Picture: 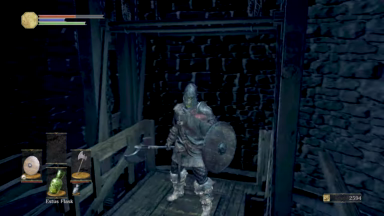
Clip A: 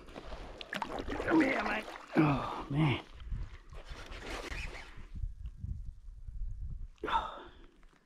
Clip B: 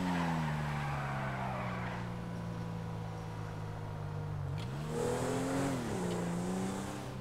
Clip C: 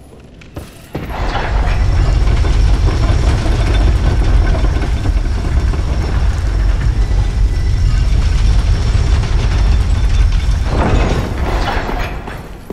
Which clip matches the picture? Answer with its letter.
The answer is C